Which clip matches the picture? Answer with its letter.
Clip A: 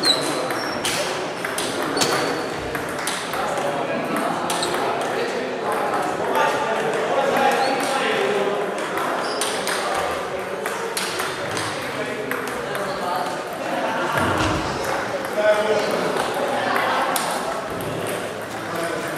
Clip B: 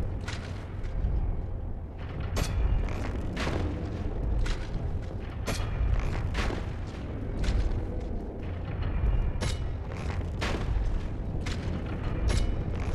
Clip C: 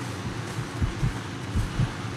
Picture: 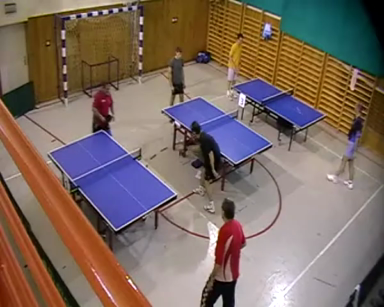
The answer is A